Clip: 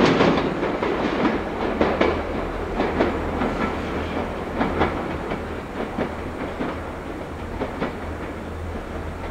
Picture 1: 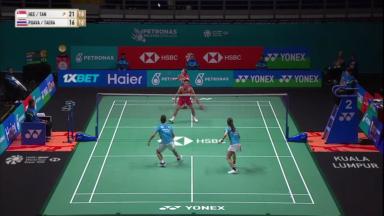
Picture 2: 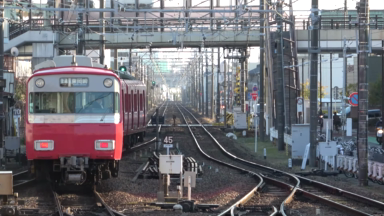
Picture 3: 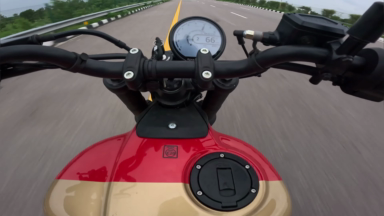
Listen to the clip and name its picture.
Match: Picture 2